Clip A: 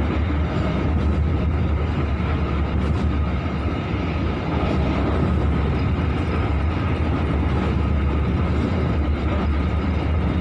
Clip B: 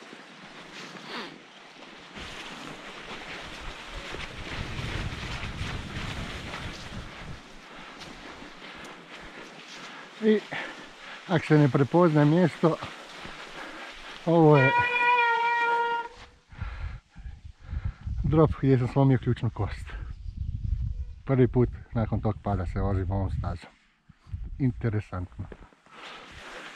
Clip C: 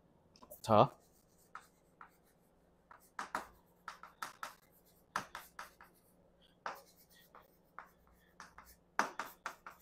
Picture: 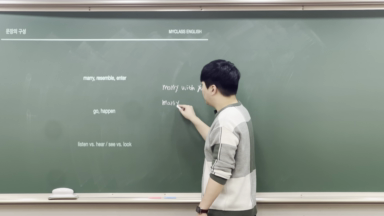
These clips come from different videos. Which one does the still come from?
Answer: C